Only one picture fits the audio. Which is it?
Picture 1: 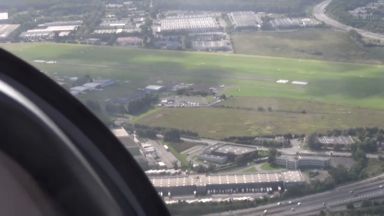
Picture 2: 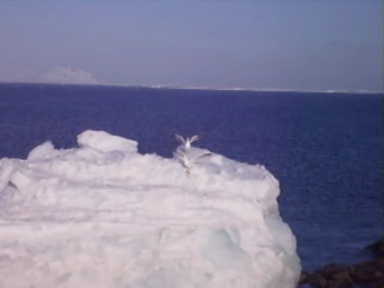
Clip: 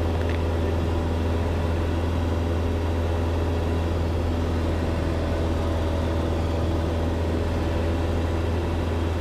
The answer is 1